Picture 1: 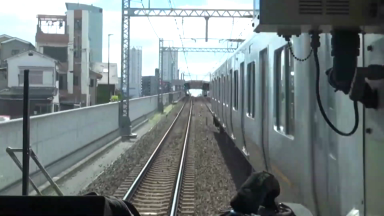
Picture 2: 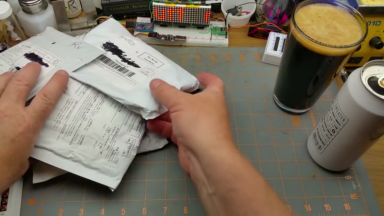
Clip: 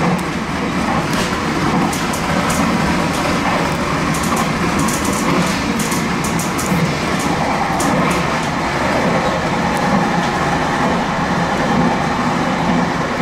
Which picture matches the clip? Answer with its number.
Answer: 1